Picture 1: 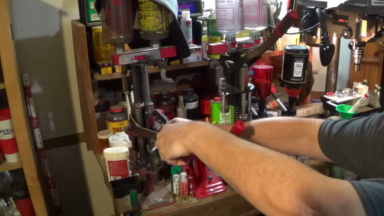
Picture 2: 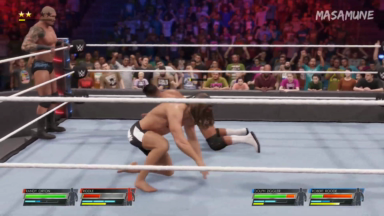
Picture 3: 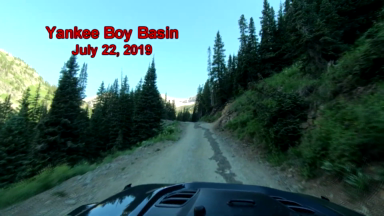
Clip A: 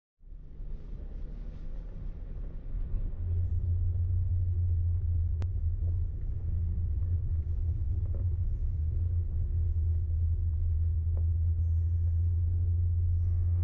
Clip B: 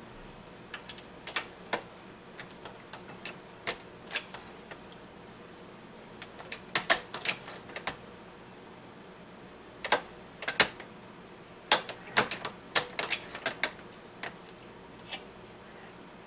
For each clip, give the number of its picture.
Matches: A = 3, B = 1